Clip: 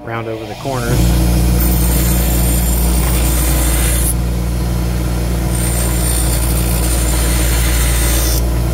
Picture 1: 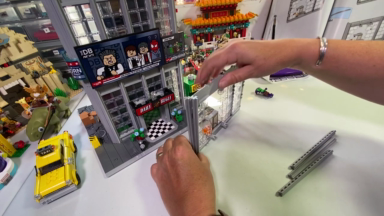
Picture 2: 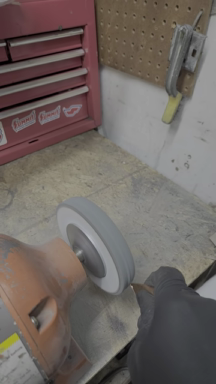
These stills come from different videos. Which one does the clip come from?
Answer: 2